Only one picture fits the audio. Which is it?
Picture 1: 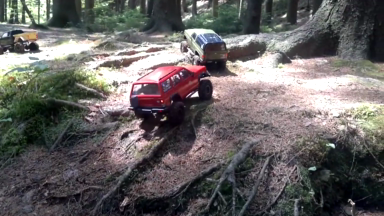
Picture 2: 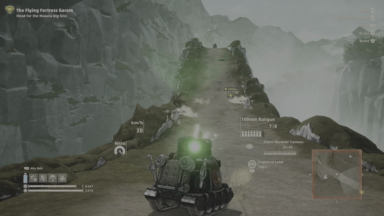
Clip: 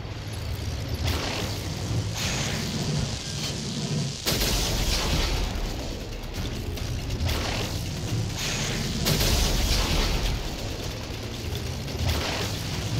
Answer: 2